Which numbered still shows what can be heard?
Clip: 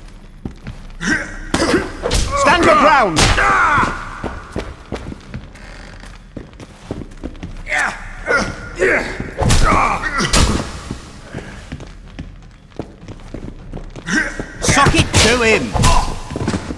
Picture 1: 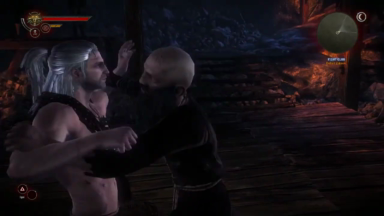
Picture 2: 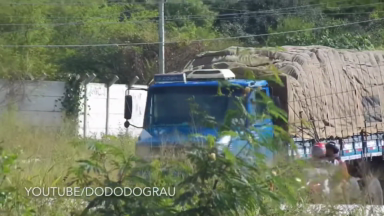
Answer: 1